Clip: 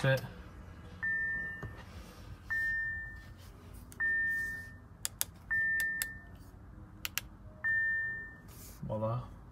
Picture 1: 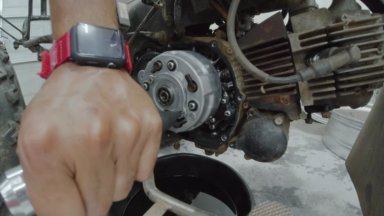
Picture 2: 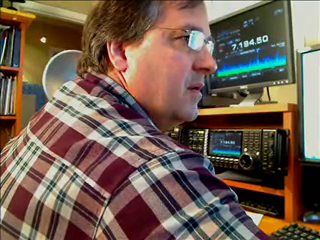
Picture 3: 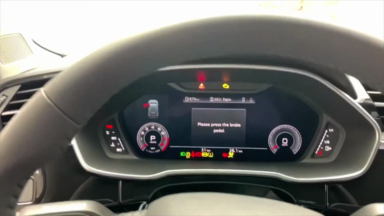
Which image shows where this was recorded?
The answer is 3